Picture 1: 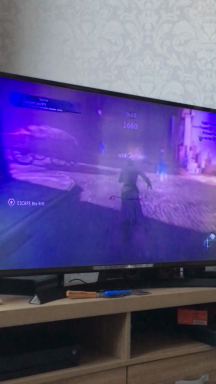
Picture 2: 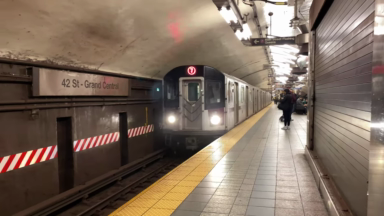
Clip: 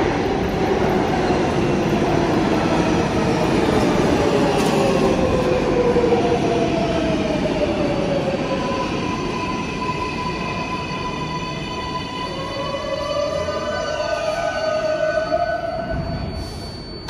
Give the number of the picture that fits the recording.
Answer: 2